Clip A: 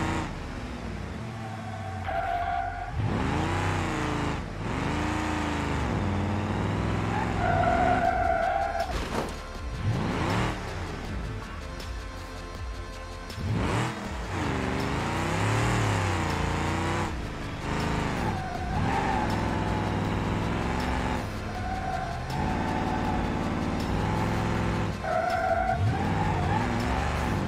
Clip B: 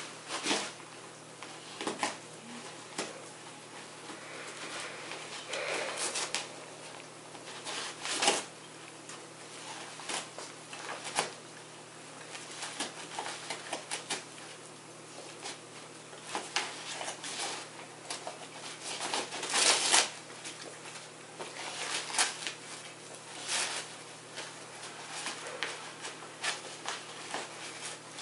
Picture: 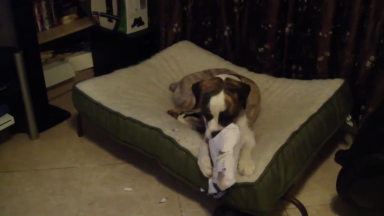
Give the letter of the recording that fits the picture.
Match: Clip B